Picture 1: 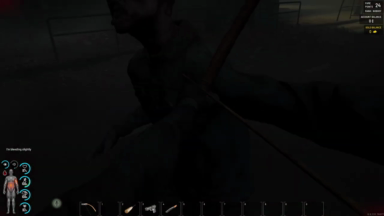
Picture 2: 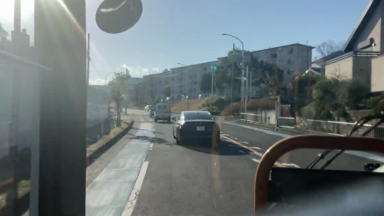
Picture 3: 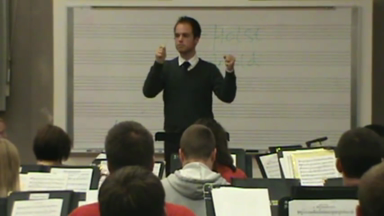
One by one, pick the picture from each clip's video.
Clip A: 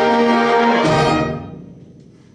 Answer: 3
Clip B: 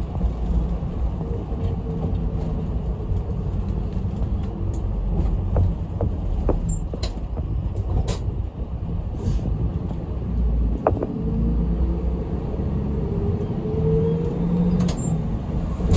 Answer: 2